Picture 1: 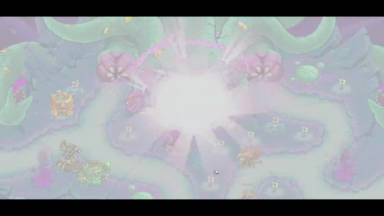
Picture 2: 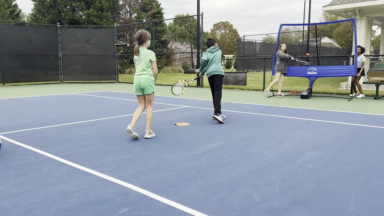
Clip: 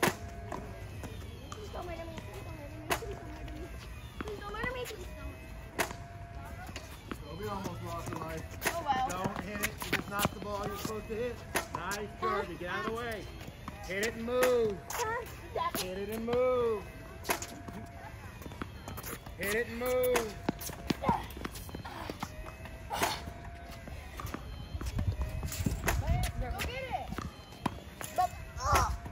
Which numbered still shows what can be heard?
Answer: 2